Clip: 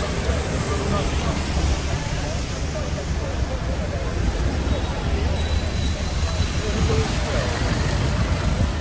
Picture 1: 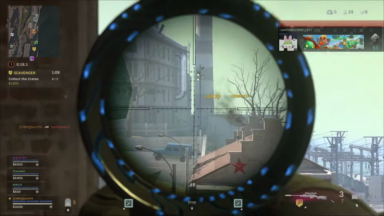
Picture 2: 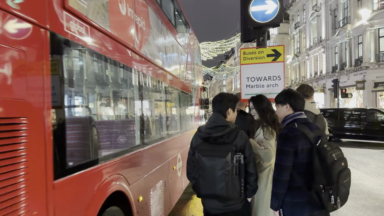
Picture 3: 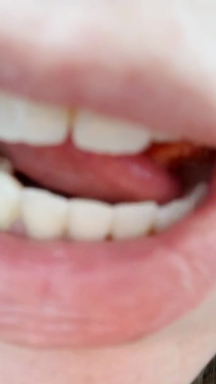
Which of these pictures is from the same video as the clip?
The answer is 2